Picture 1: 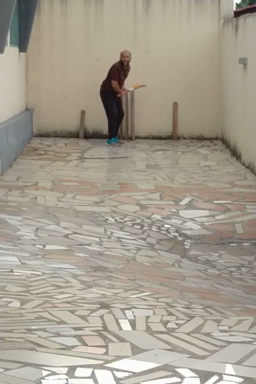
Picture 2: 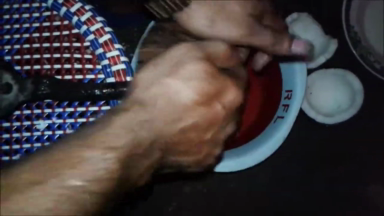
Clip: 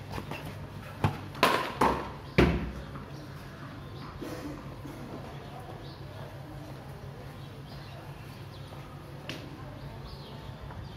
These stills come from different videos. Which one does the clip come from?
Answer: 1